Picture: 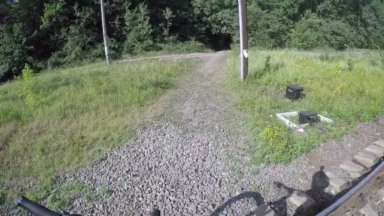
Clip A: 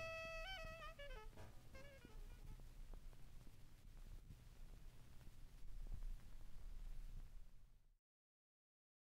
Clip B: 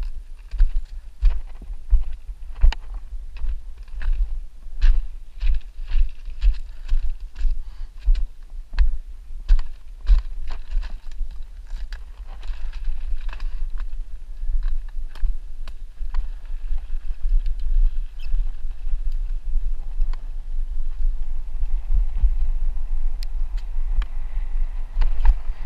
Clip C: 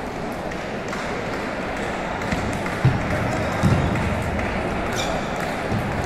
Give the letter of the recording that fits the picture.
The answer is B